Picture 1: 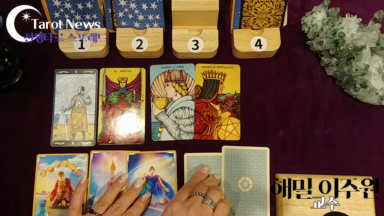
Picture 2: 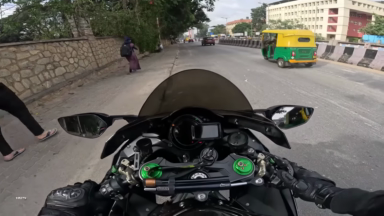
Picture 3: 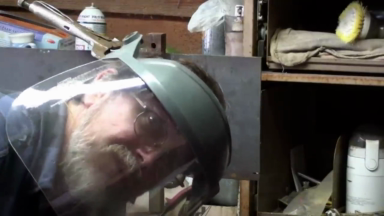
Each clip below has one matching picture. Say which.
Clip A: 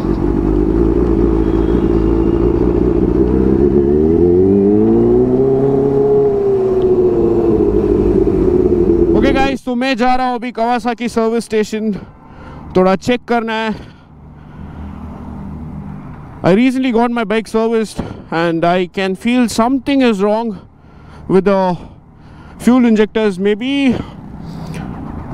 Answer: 2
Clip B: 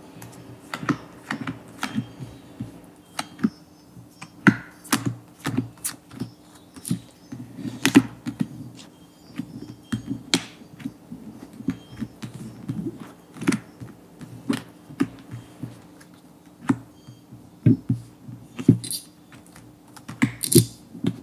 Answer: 1